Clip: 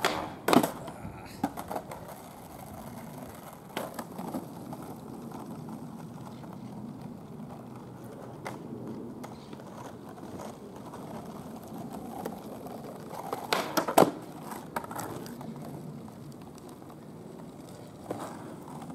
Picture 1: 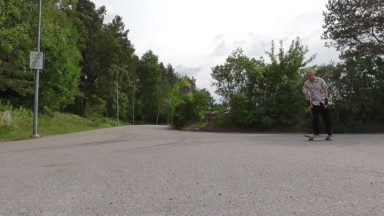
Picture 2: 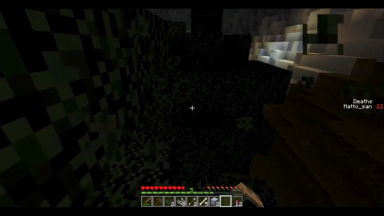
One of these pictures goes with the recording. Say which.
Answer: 1